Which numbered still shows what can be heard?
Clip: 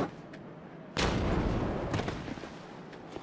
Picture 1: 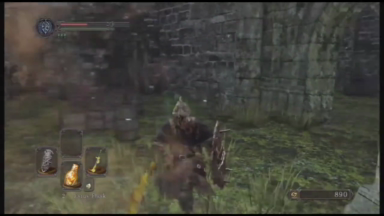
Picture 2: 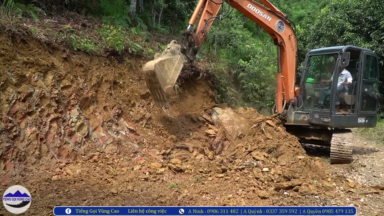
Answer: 1